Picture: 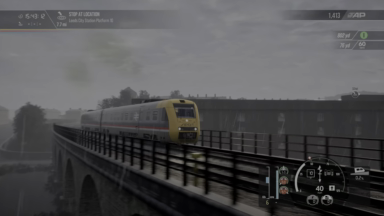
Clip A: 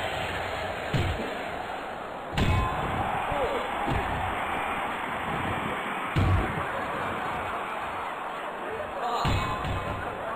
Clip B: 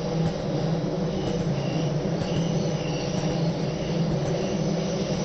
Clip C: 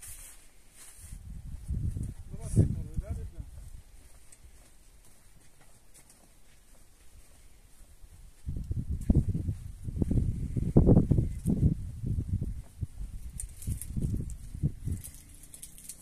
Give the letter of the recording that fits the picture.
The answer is B